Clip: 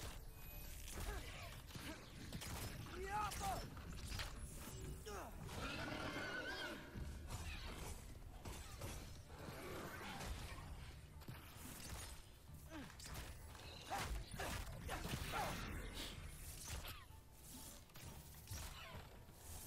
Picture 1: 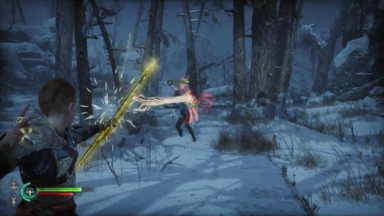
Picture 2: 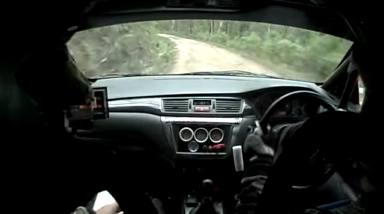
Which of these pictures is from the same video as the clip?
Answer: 1